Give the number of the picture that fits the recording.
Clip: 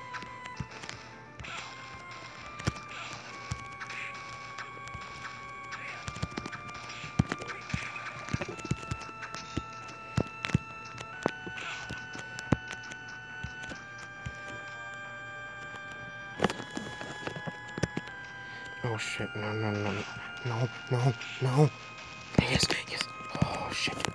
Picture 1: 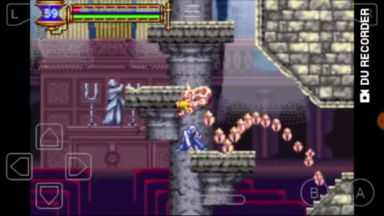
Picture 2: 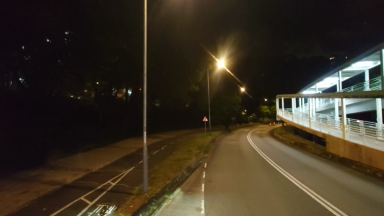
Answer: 1